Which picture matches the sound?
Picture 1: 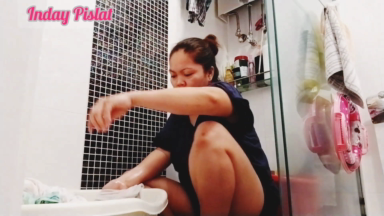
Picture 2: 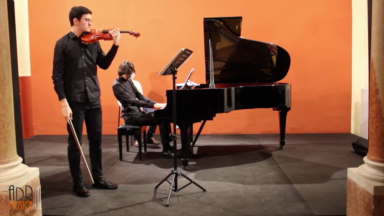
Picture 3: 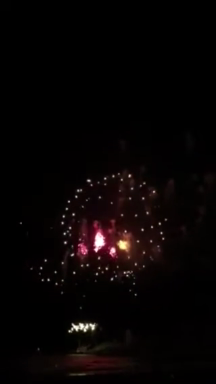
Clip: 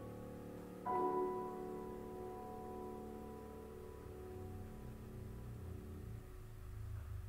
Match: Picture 2